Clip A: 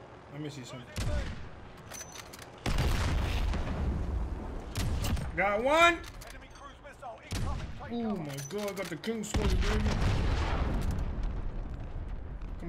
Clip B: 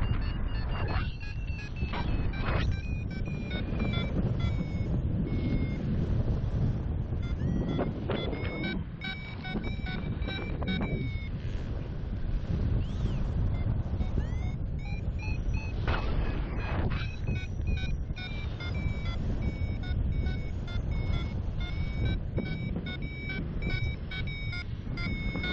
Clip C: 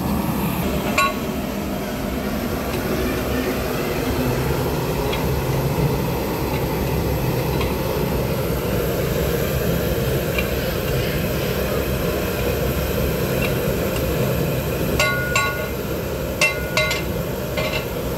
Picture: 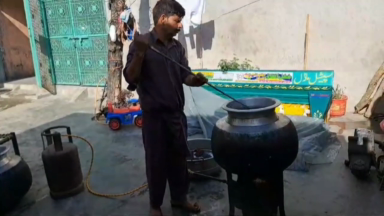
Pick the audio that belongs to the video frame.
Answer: C